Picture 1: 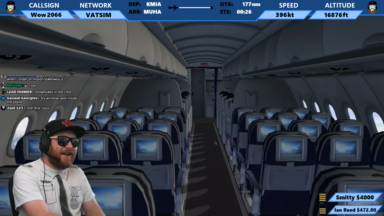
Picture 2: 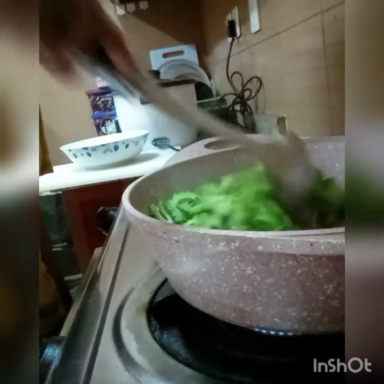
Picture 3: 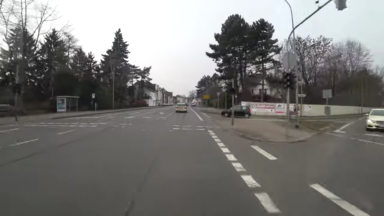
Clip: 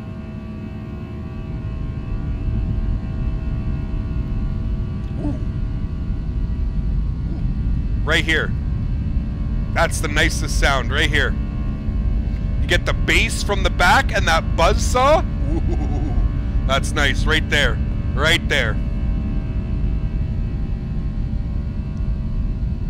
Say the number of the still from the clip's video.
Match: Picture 1